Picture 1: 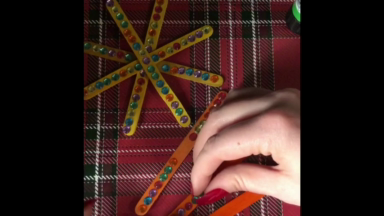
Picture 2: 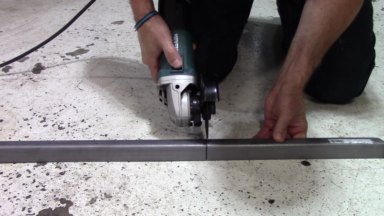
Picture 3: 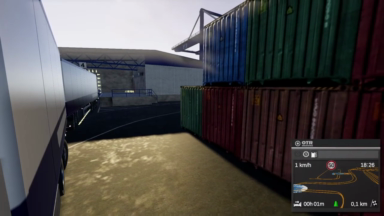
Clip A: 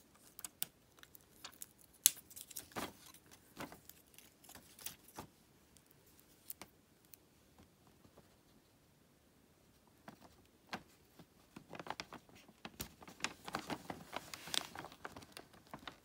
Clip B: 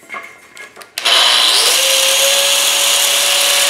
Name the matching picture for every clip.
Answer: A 1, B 2